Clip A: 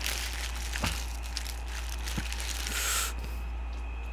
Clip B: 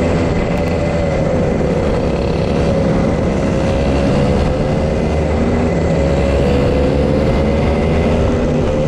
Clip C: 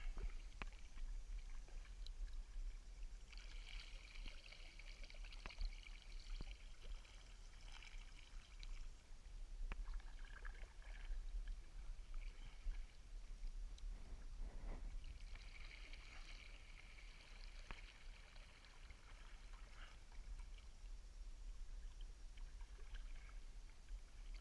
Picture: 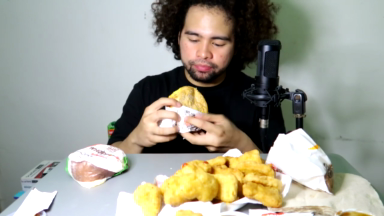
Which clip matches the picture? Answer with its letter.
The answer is A